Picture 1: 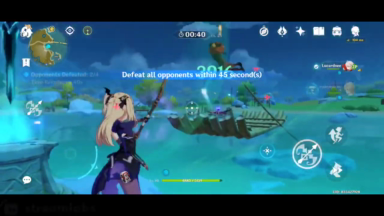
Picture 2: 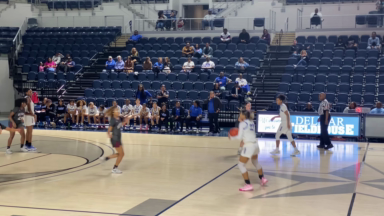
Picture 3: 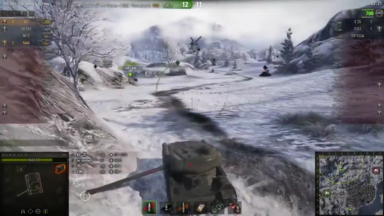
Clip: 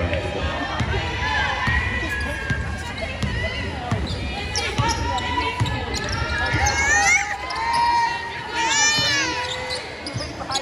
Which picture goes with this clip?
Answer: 2